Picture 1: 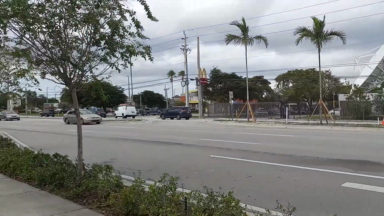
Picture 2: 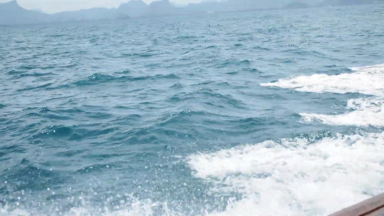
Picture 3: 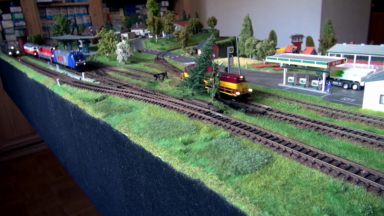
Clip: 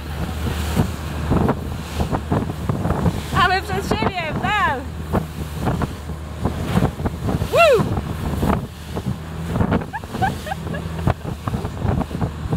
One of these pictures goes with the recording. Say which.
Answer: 2